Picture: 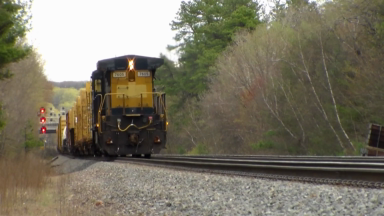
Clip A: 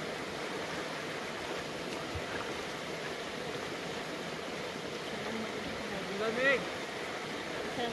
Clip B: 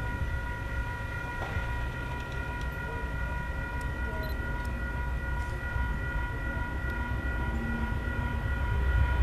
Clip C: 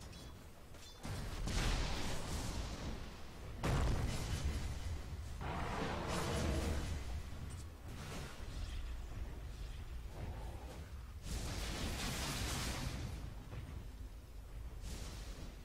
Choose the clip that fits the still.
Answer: B